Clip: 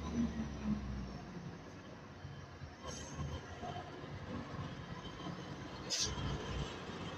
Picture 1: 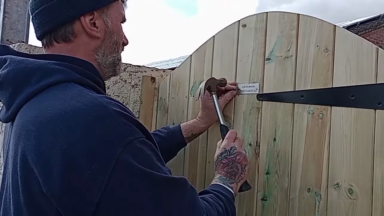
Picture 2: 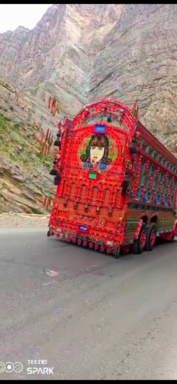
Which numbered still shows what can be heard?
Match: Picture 2